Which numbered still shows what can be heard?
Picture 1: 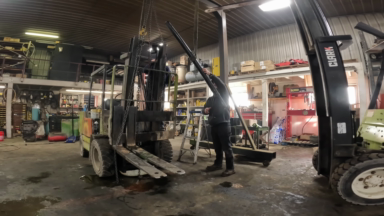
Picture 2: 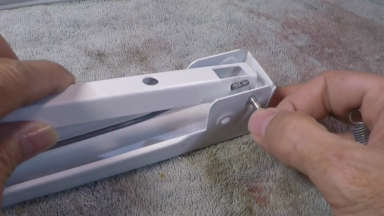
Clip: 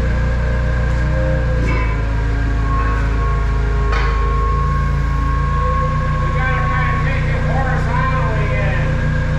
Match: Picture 1